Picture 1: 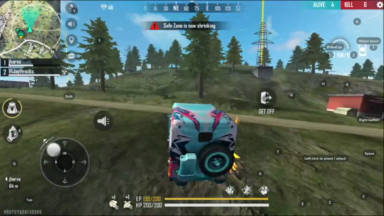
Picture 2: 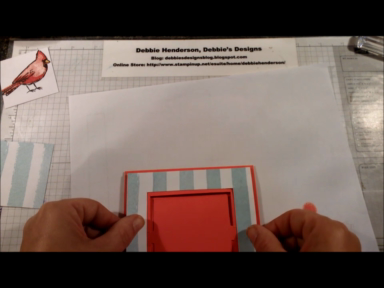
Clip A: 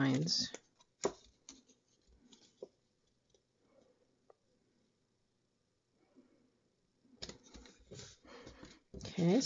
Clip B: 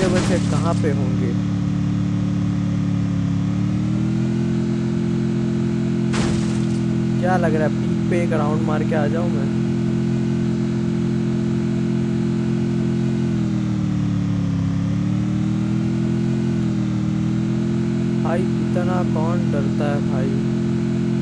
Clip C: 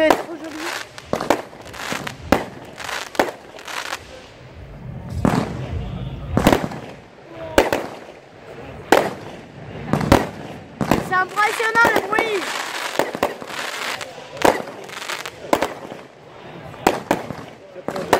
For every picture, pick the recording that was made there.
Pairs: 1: B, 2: A